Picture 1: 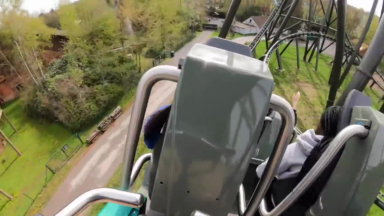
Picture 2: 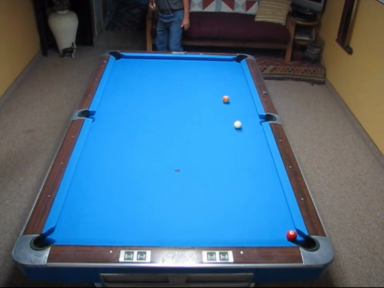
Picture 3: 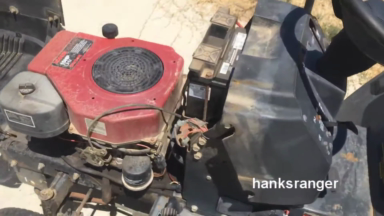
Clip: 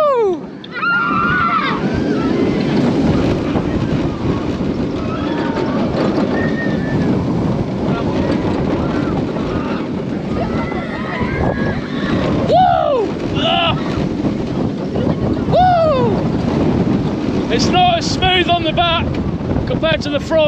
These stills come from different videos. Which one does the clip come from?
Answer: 1